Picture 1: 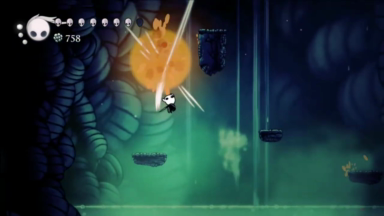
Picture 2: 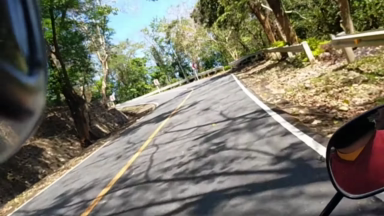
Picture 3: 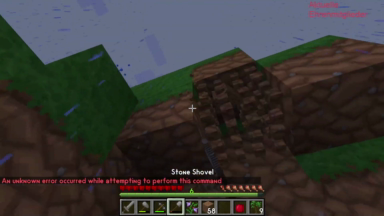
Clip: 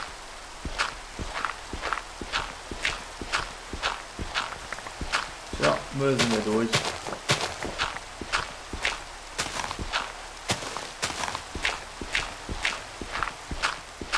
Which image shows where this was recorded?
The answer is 3